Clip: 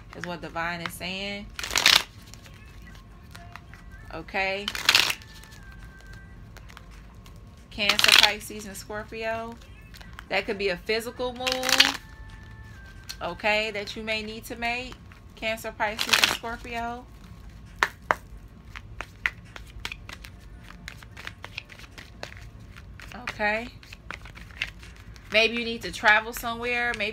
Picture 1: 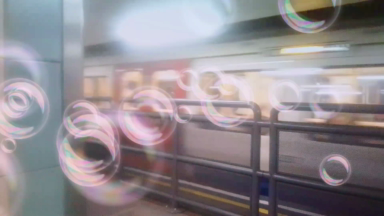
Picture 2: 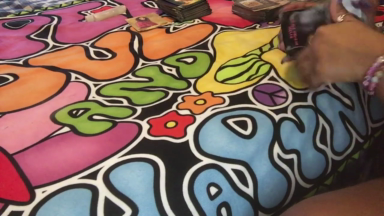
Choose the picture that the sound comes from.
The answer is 2